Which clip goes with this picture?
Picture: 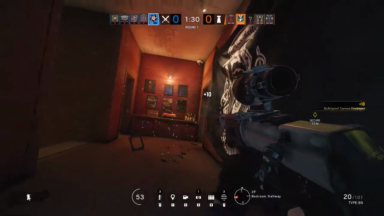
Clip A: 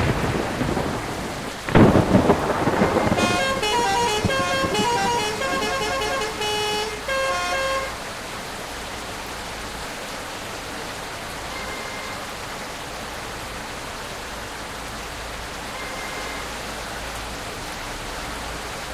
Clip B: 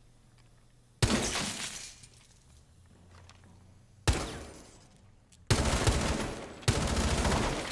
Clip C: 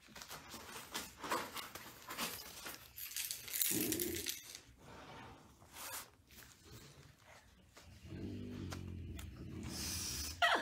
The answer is B